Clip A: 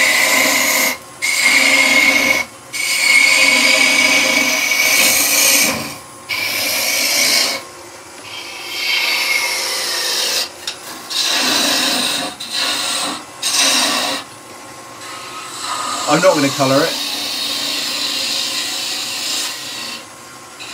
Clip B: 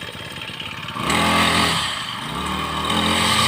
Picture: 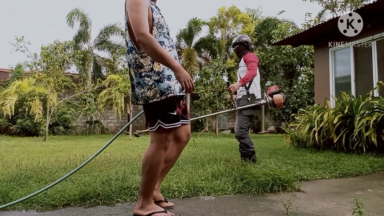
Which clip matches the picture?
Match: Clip B